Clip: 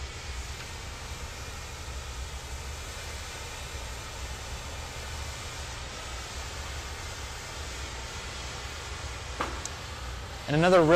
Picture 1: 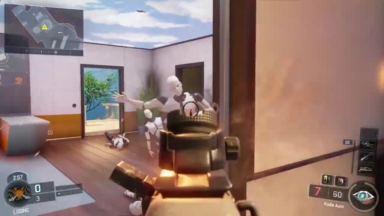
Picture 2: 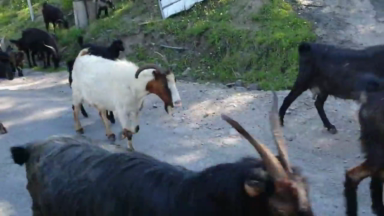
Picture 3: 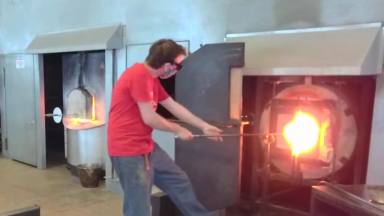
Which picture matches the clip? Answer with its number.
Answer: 3